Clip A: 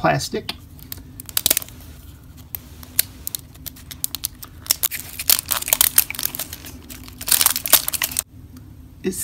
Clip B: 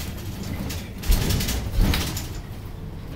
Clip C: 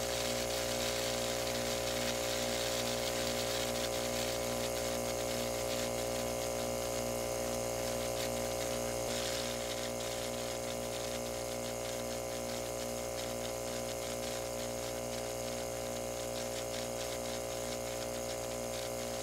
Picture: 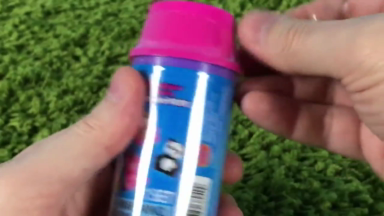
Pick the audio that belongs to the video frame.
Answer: A